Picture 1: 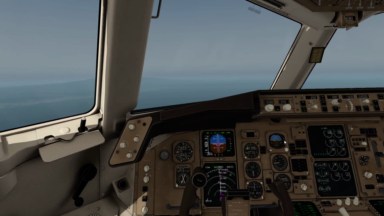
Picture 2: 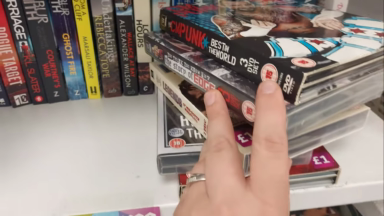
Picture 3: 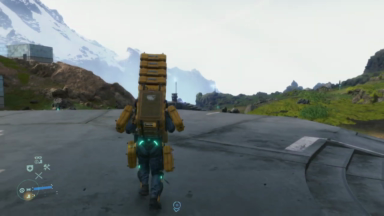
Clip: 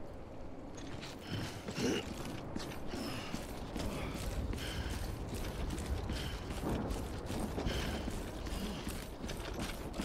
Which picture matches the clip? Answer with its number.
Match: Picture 3